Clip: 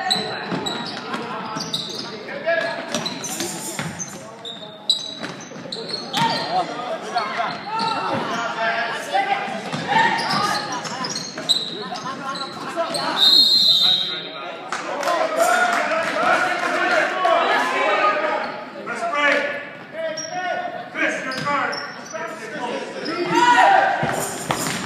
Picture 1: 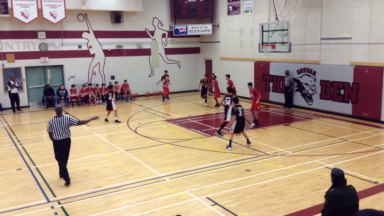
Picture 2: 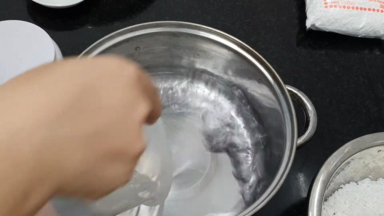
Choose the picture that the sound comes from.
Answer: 1